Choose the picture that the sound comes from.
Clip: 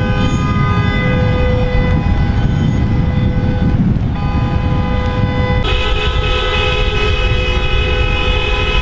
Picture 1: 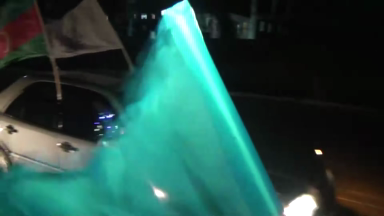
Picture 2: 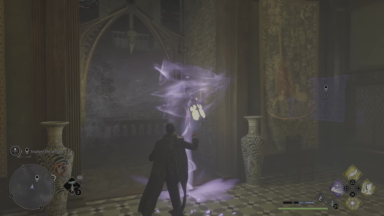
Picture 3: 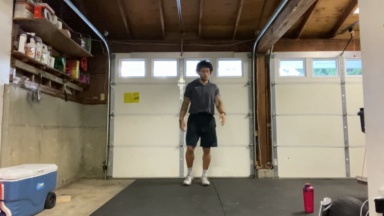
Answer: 1